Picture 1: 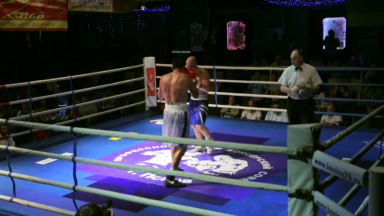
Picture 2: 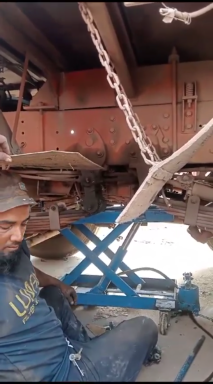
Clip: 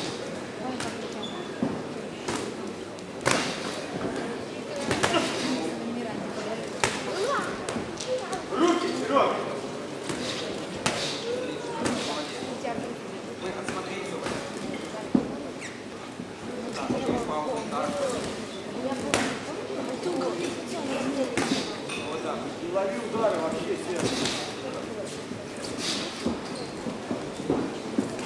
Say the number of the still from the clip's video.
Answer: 1